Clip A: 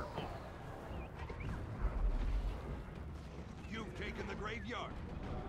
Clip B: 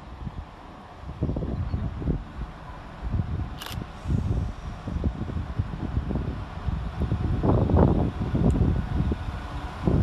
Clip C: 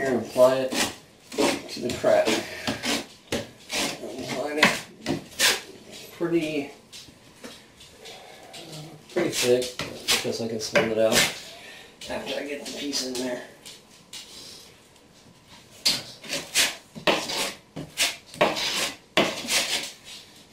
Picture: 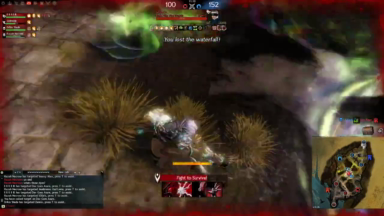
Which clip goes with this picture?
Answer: A